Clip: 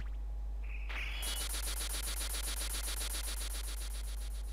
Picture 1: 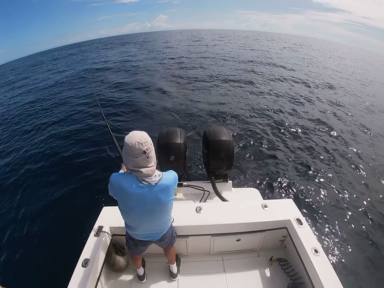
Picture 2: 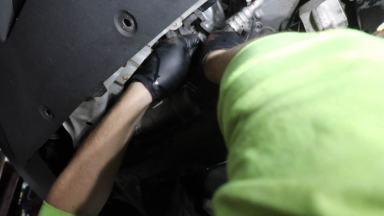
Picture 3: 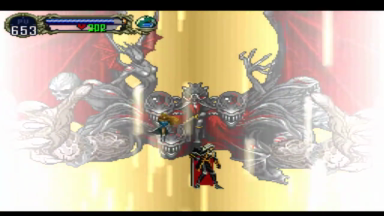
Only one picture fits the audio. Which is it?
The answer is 3